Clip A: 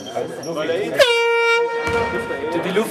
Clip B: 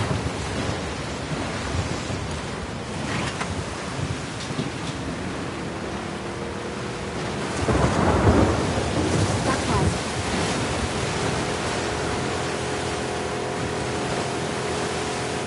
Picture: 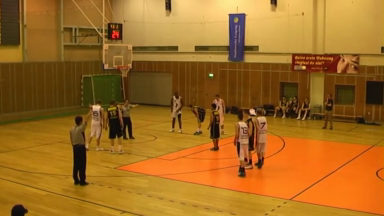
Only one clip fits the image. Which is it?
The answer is A